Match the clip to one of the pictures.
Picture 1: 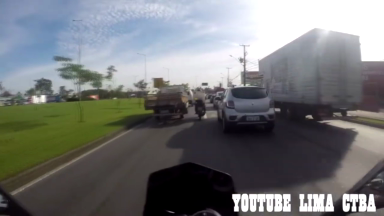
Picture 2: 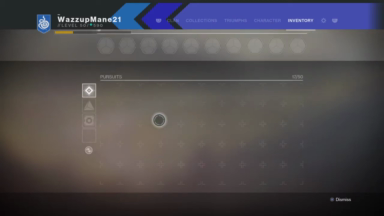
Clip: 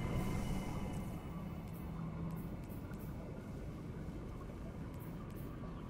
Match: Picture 2